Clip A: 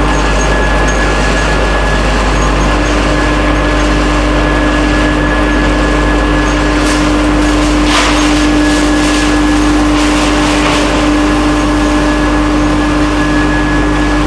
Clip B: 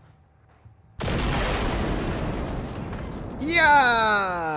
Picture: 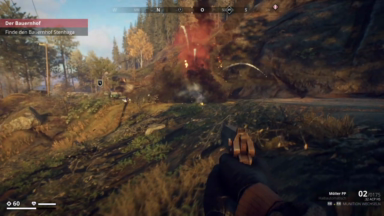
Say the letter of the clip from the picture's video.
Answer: B